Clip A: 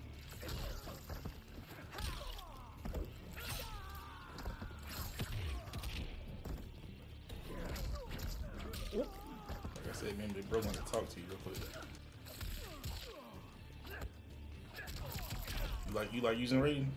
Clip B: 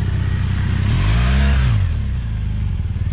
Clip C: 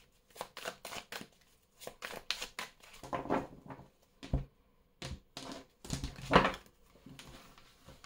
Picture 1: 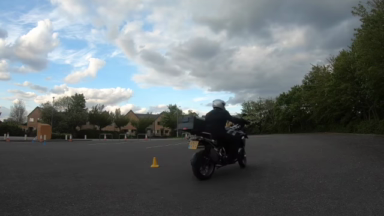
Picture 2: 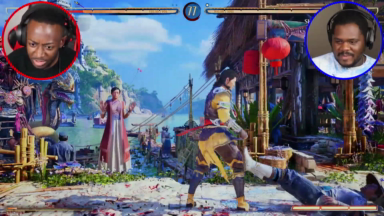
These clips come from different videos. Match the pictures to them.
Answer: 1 B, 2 A